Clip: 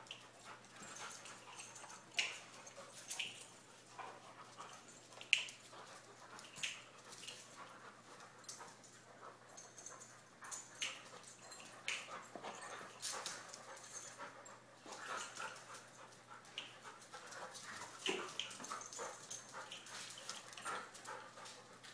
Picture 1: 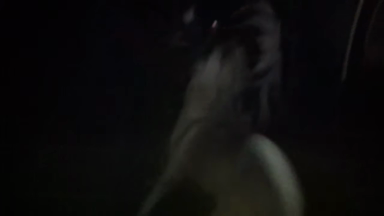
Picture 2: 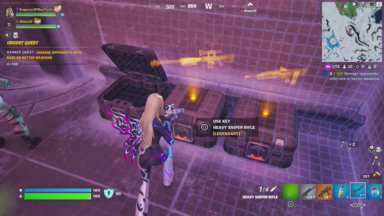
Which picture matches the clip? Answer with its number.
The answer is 1